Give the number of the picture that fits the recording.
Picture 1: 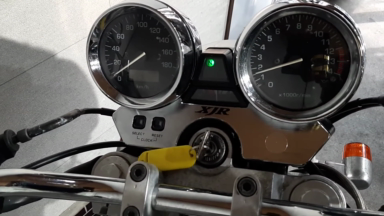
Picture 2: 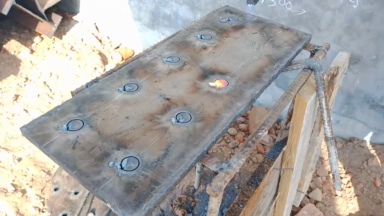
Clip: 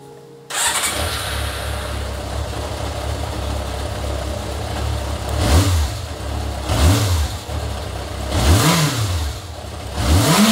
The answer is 1